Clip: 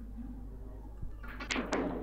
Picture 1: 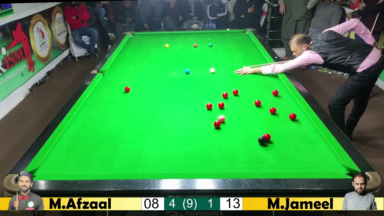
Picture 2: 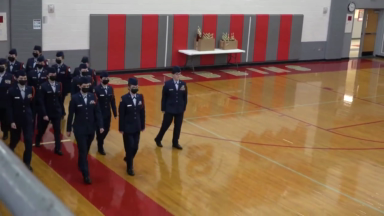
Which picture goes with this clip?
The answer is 1